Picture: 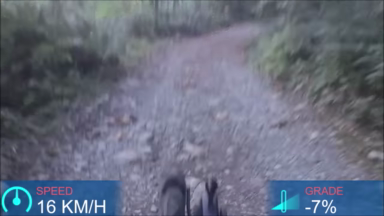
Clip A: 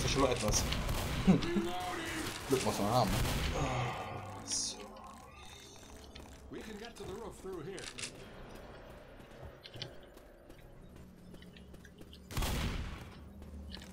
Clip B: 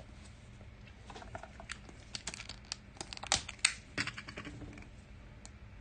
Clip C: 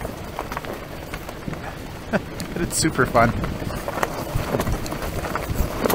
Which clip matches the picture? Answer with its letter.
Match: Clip C